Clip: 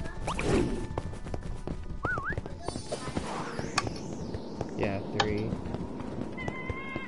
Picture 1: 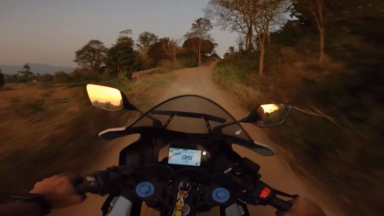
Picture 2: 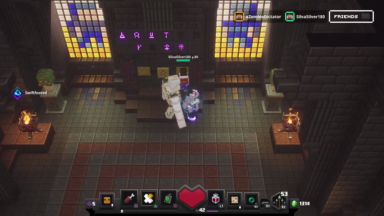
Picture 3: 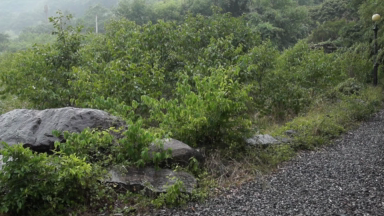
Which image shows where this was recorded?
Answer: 2